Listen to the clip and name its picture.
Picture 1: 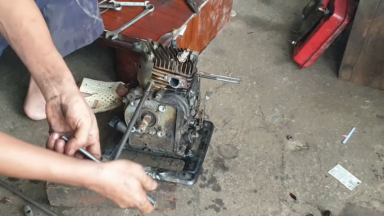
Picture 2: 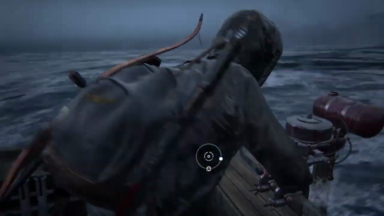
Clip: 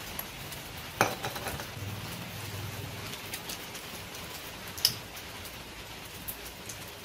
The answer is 1